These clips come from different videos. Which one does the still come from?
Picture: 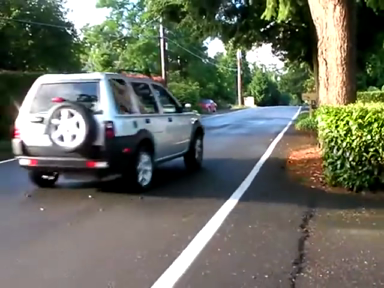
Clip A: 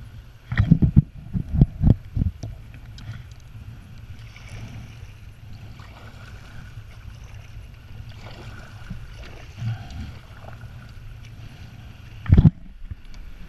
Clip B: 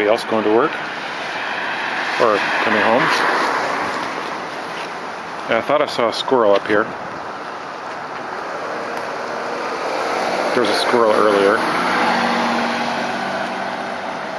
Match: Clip B